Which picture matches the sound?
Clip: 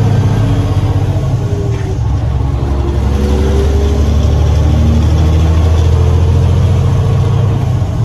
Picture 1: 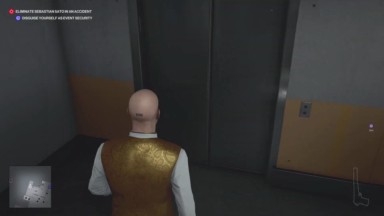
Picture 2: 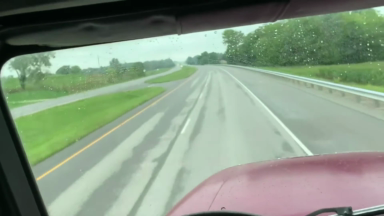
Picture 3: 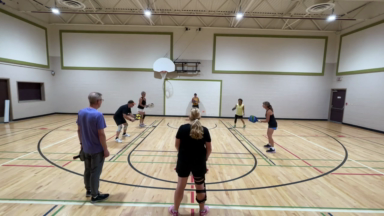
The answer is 2